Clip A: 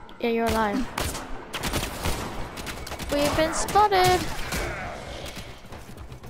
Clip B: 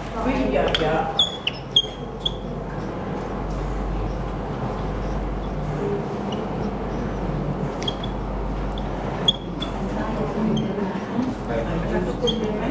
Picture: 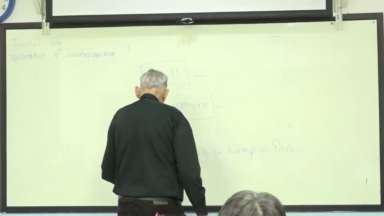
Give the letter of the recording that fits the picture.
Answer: B